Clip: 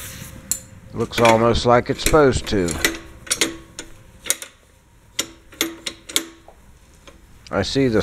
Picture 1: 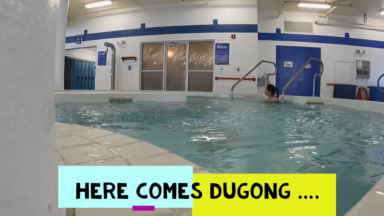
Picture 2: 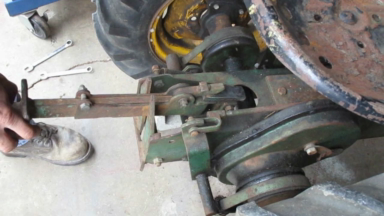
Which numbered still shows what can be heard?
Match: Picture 2